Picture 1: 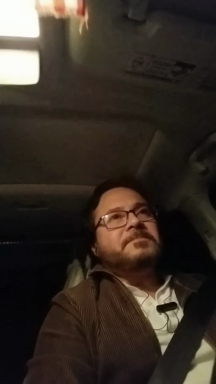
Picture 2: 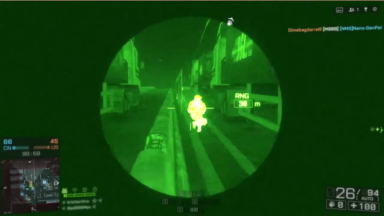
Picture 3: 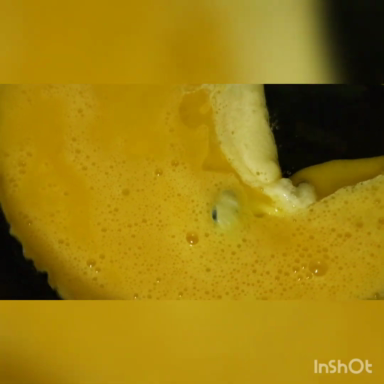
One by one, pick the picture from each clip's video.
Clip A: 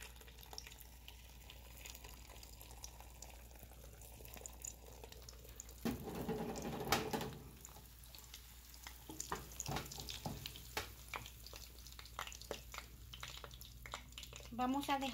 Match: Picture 3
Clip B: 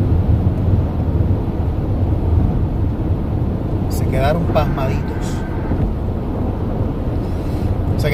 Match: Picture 1